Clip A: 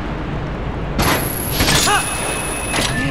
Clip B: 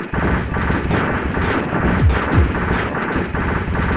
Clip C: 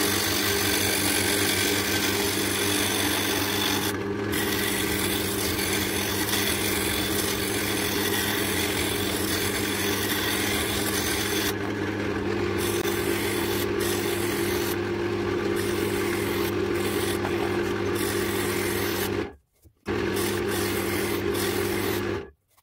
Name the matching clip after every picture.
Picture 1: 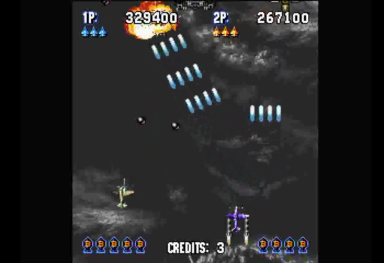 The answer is B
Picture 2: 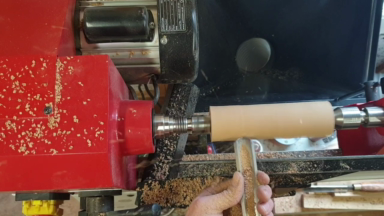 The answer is C